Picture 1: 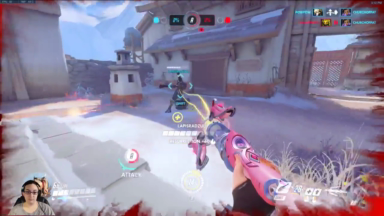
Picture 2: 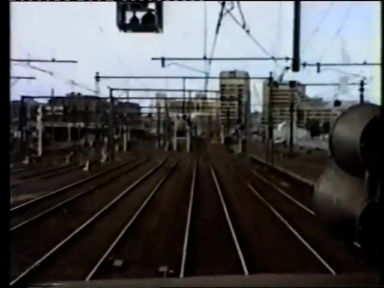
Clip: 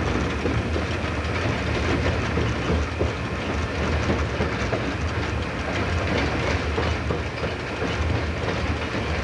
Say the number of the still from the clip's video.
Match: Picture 2